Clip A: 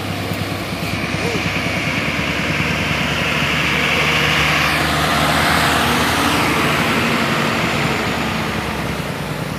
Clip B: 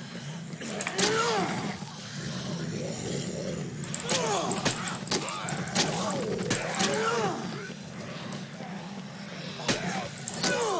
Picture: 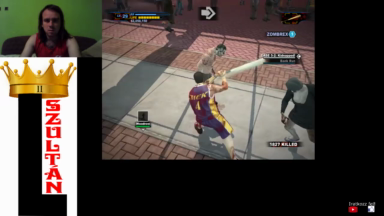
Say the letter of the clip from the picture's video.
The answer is B